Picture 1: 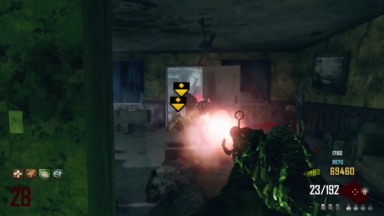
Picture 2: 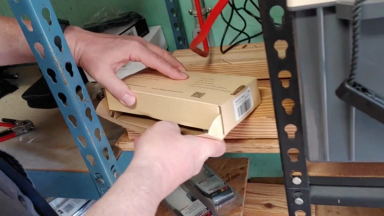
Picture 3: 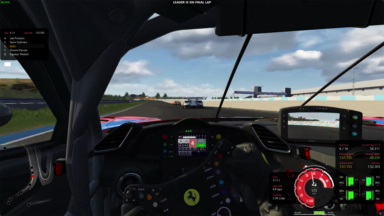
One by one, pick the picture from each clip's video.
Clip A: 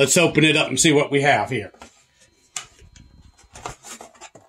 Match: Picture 2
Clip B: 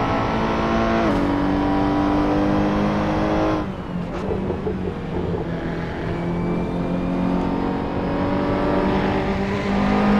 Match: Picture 3